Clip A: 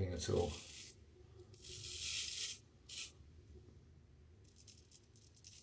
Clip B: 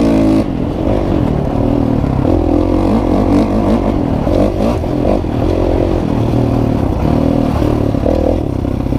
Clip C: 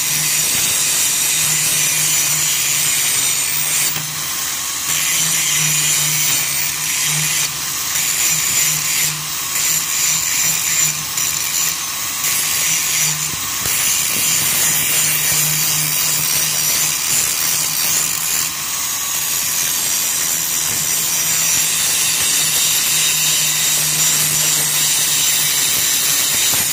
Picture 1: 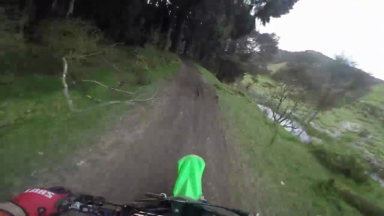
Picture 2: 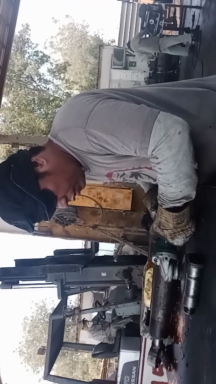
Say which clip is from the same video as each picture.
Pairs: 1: B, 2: C